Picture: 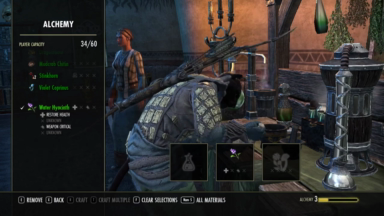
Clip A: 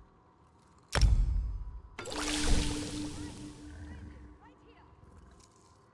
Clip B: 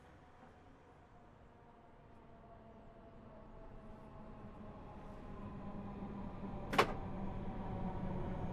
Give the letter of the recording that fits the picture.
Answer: A